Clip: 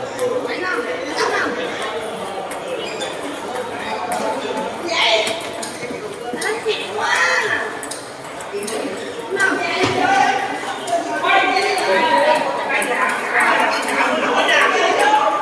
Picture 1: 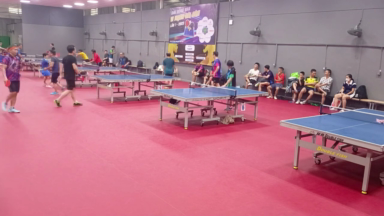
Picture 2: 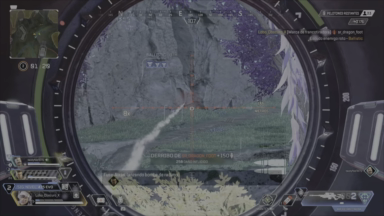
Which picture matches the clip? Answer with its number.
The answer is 1